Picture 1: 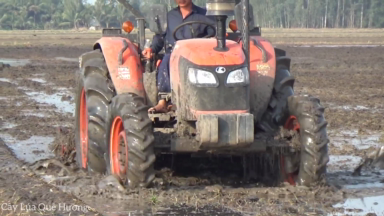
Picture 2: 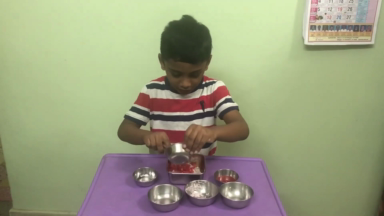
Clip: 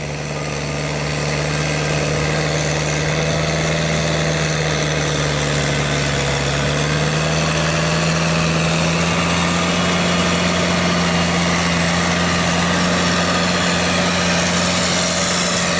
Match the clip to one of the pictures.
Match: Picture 1